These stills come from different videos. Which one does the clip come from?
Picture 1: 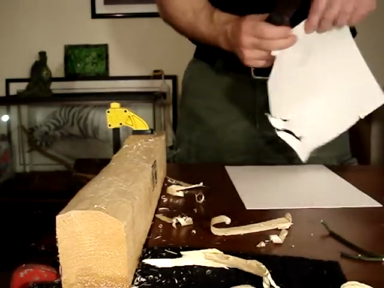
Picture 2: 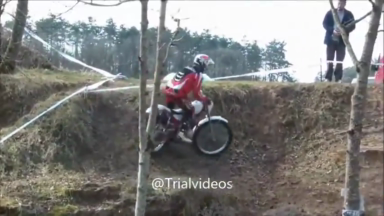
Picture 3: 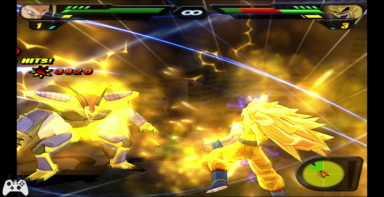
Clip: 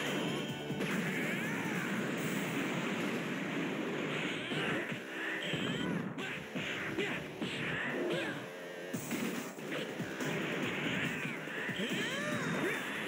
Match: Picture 3